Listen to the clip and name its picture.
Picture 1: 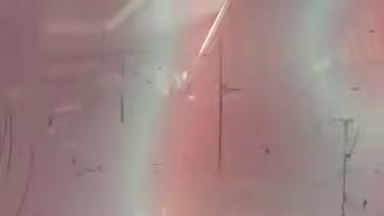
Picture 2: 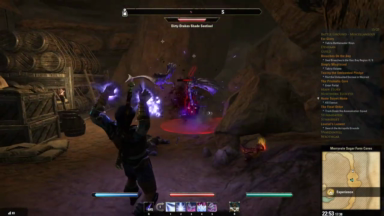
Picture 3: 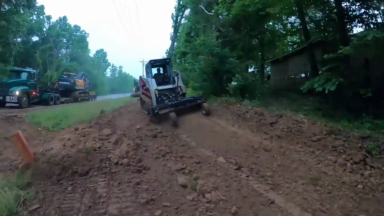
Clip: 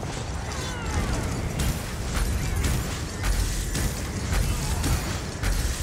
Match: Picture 2